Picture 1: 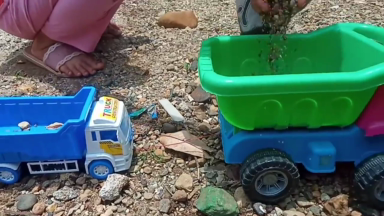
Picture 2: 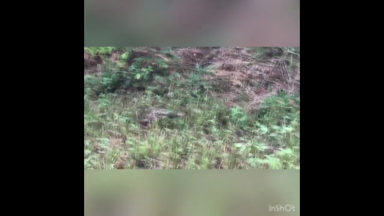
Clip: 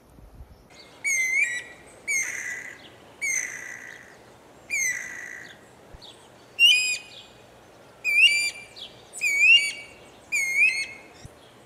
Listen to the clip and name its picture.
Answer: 2